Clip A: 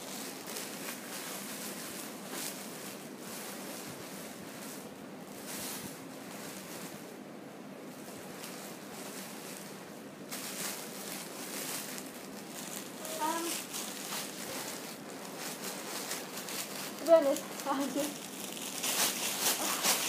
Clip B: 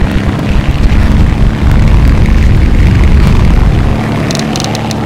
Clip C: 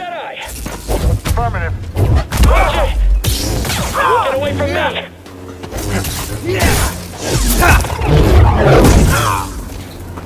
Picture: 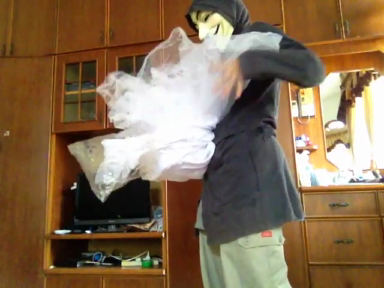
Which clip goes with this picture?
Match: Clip A